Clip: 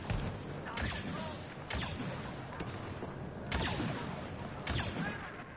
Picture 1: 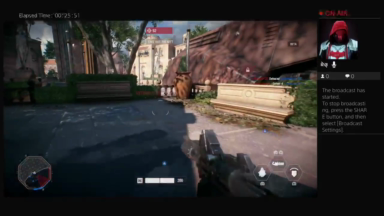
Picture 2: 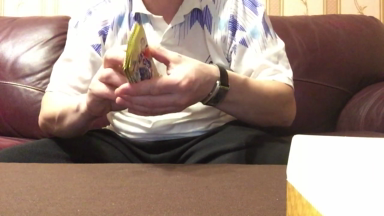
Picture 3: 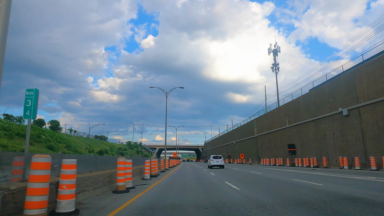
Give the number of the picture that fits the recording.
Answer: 1